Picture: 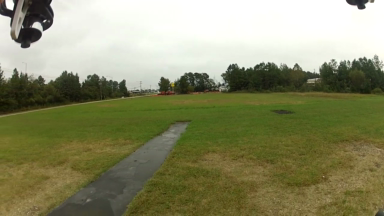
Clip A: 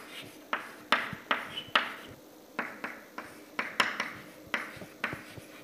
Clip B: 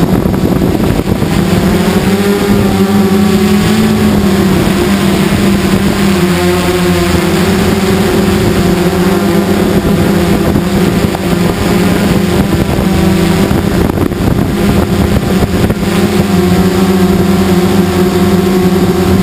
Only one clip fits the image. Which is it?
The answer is B